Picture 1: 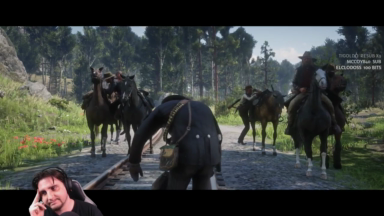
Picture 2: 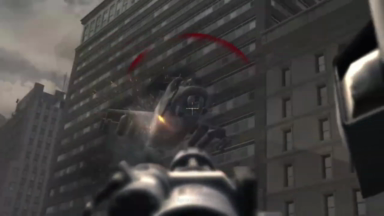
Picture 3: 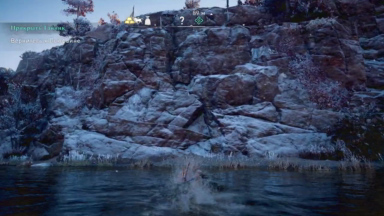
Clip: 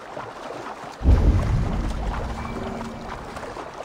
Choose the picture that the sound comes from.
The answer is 3